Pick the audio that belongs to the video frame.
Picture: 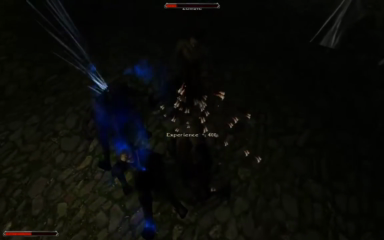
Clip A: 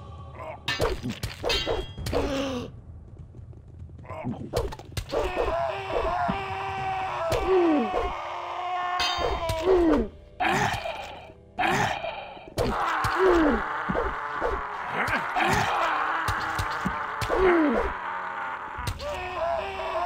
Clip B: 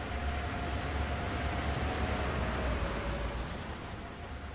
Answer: A